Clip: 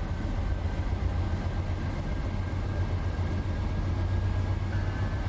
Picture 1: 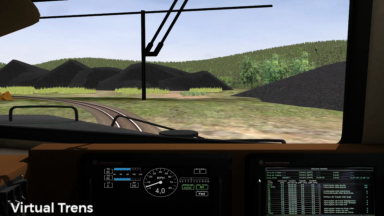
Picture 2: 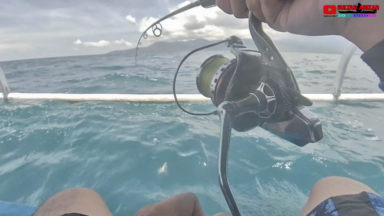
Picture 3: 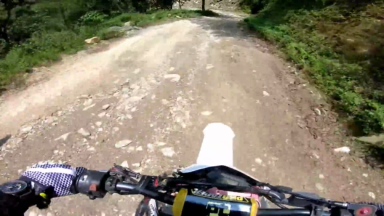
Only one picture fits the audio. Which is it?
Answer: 1